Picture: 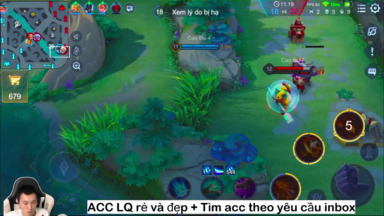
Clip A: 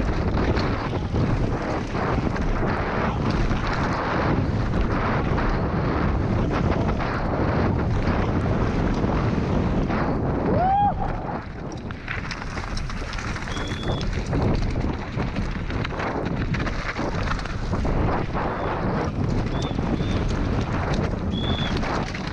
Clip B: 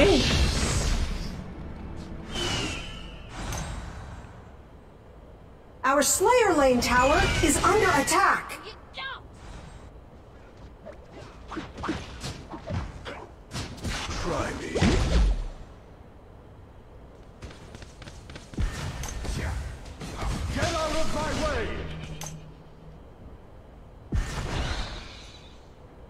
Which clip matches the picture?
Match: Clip B